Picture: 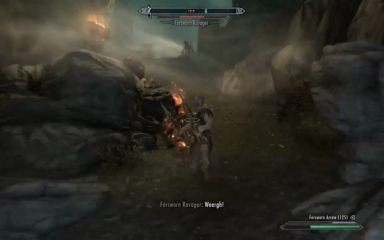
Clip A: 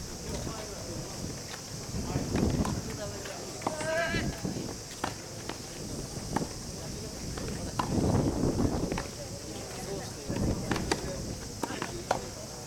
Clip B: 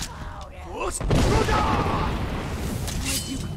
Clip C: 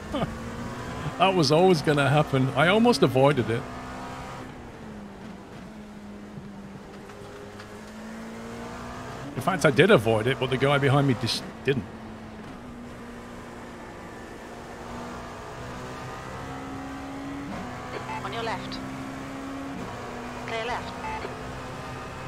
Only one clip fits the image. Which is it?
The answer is B